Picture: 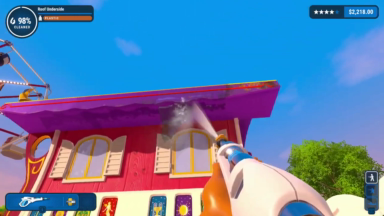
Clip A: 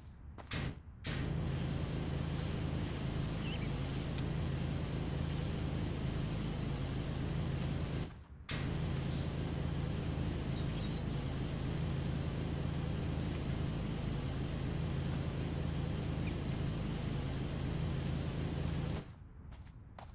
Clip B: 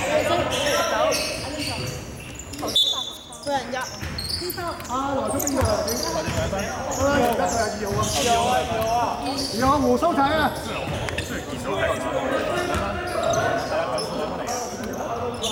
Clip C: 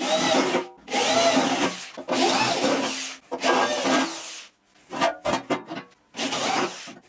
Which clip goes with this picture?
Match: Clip A